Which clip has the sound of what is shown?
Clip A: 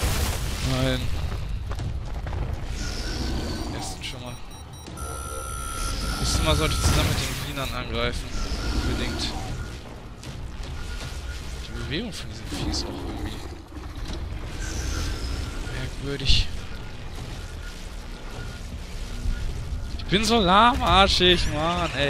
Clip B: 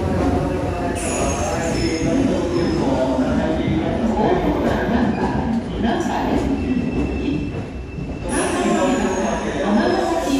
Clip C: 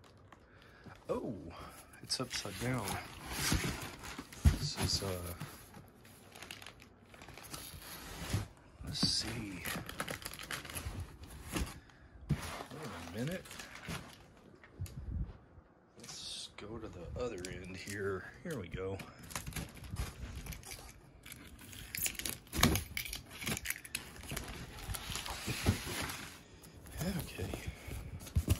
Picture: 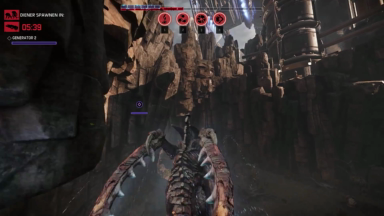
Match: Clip A